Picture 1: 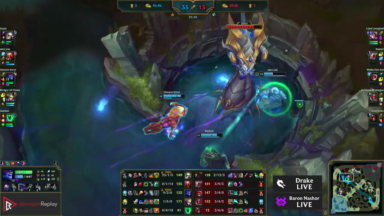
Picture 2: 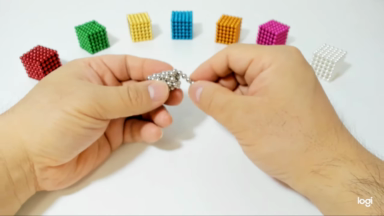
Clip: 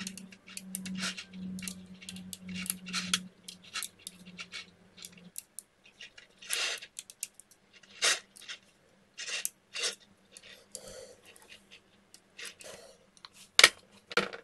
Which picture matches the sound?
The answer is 2